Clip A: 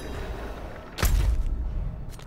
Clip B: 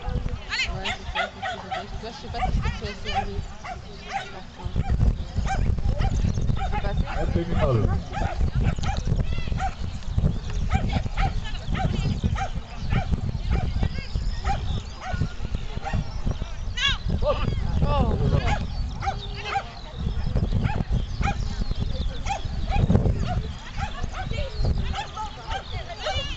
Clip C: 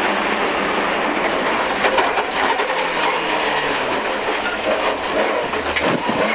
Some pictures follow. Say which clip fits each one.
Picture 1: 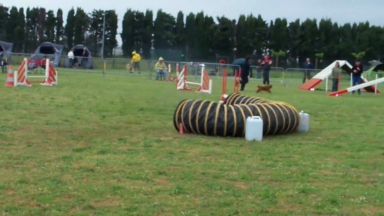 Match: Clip B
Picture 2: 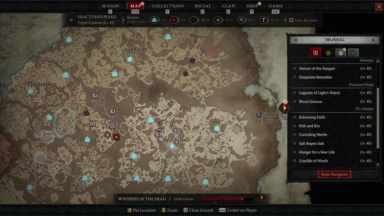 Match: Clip A